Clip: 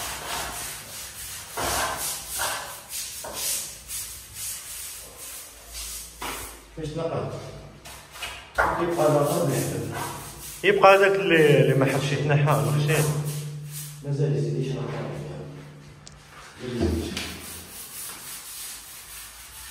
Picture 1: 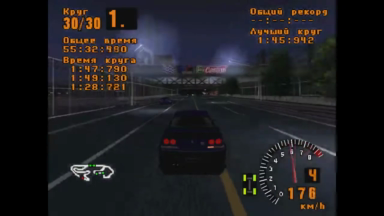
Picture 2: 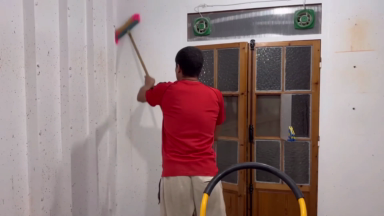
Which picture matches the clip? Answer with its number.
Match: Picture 2